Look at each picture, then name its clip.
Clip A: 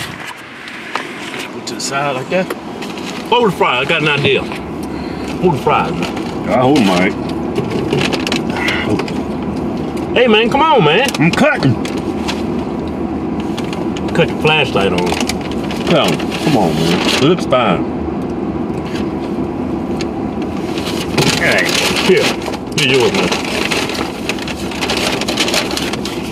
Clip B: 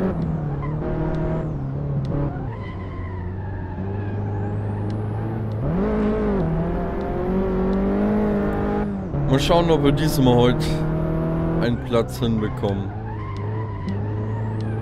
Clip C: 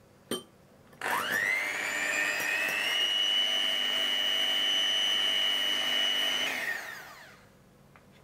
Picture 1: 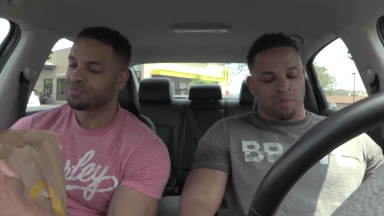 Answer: A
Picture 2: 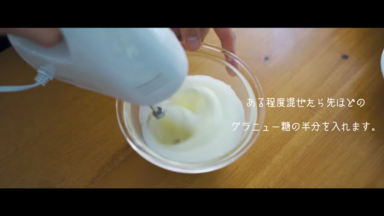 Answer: C